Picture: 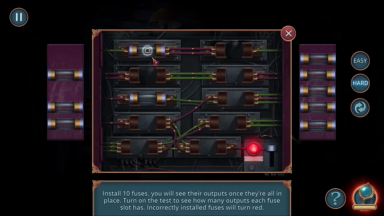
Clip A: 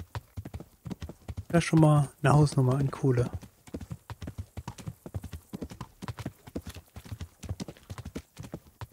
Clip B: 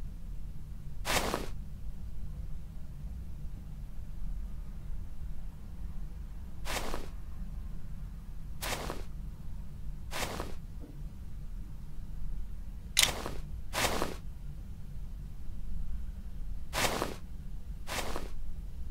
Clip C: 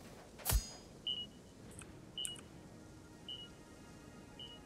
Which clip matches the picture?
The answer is B